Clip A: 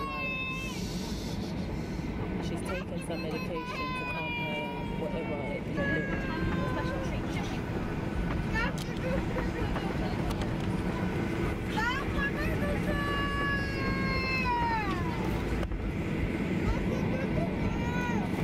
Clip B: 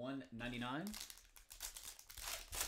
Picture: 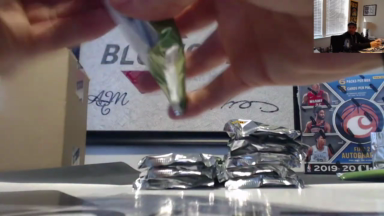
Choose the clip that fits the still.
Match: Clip B